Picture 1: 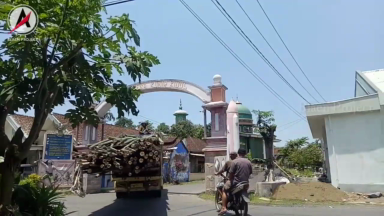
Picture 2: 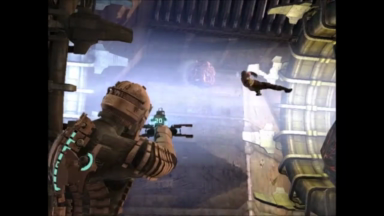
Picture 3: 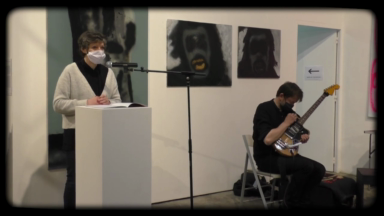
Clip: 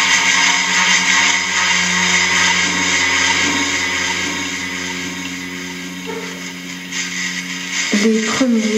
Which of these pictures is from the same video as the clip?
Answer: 3